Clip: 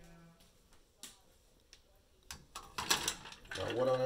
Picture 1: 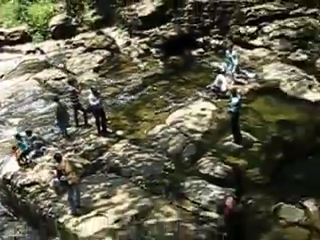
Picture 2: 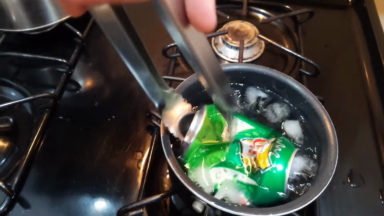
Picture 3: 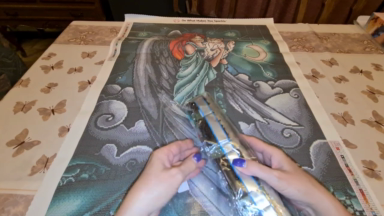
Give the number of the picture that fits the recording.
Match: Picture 2